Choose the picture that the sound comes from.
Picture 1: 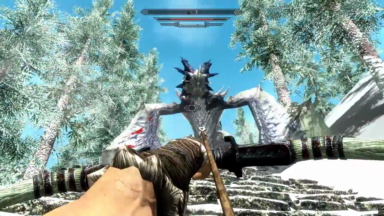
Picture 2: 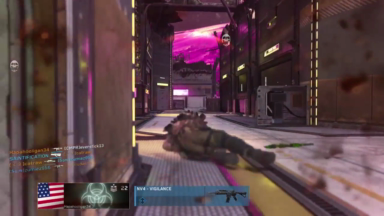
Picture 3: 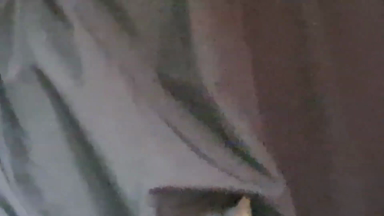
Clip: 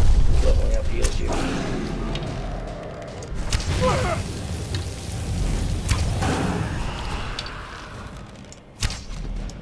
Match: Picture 1